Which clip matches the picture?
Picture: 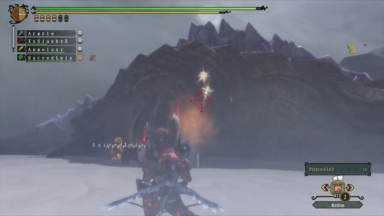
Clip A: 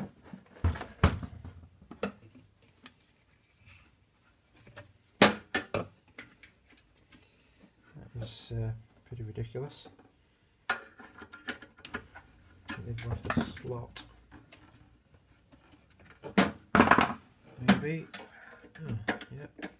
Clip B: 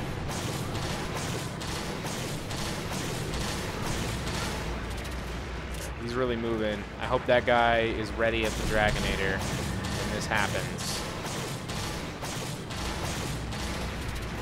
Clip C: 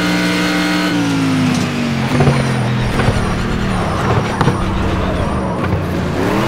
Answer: B